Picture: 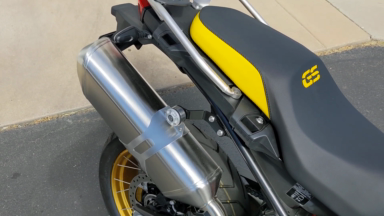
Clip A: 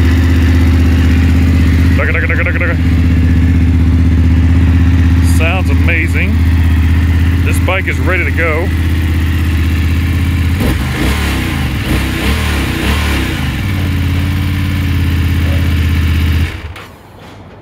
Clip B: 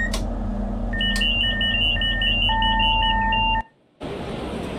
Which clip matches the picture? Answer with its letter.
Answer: A